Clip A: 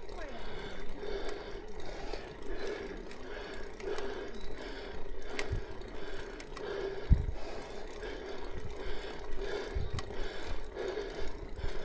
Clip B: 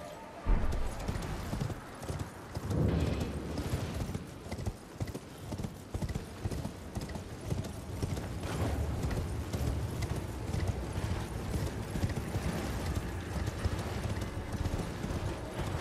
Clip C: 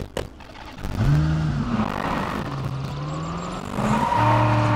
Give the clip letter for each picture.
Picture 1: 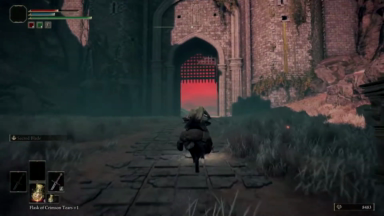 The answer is B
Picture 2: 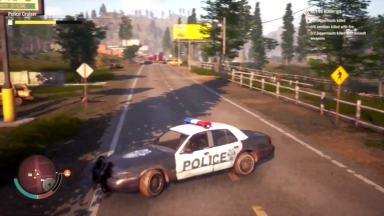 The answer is C